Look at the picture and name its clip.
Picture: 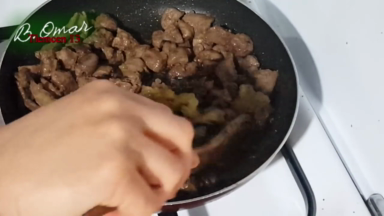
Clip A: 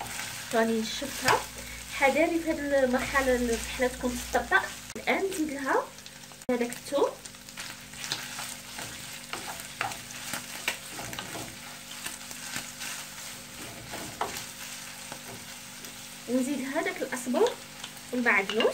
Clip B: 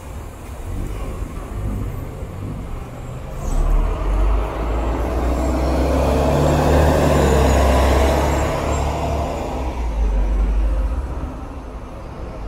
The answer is A